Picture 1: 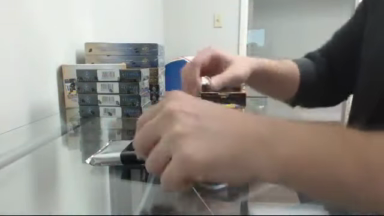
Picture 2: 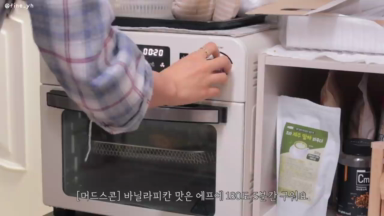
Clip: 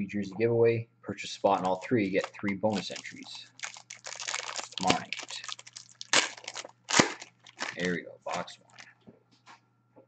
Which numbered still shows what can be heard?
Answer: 1